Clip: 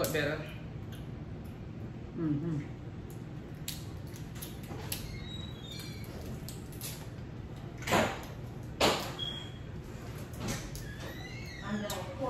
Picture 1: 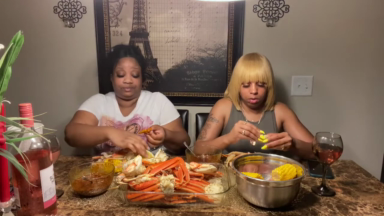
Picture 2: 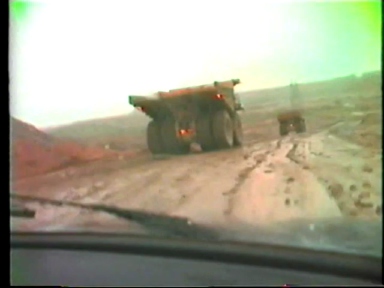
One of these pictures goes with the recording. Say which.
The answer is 1